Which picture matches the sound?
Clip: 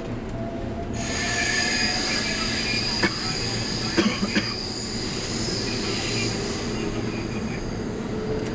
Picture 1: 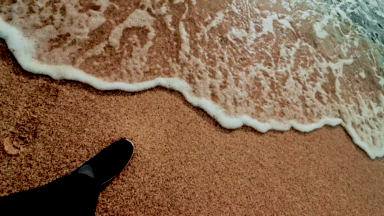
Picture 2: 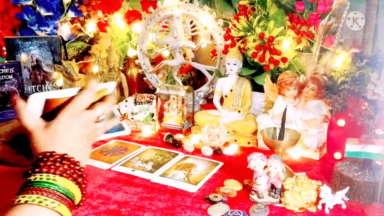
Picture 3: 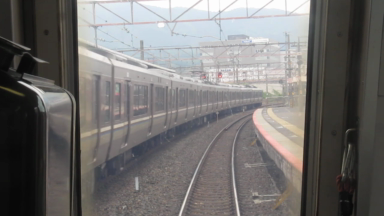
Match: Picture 3